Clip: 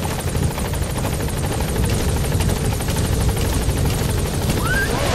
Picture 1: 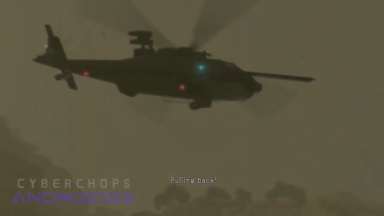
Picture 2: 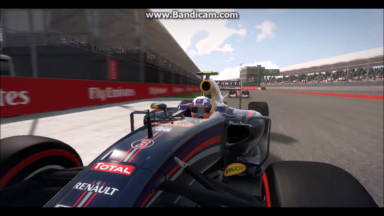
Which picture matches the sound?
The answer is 1